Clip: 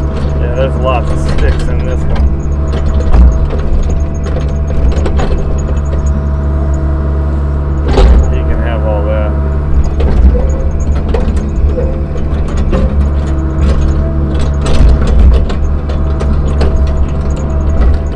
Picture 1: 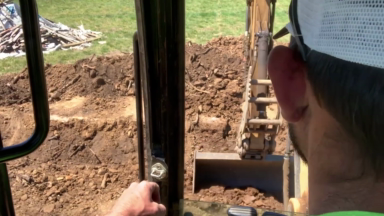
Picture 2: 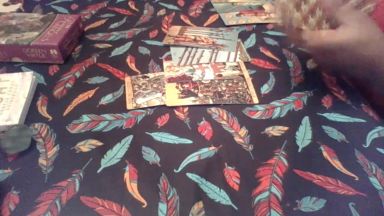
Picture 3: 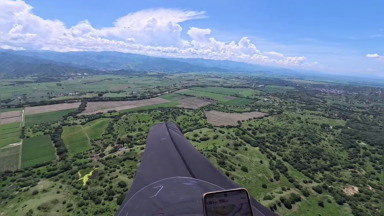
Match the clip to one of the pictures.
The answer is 1